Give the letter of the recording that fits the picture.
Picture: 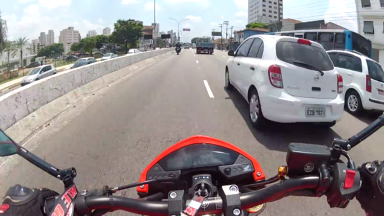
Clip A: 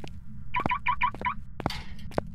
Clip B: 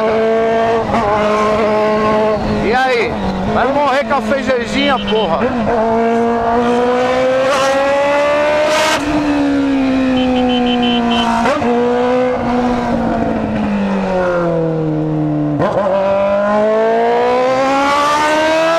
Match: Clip B